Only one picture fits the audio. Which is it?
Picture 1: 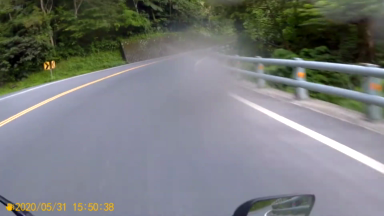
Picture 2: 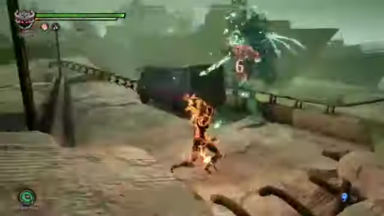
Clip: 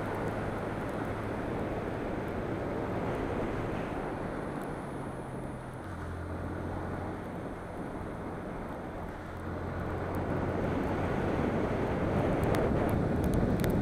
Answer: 1